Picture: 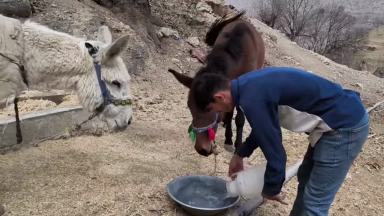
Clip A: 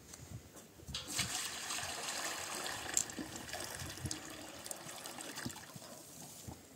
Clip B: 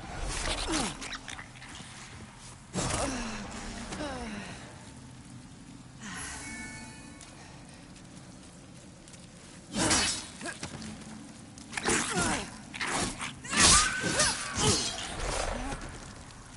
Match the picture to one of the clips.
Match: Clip A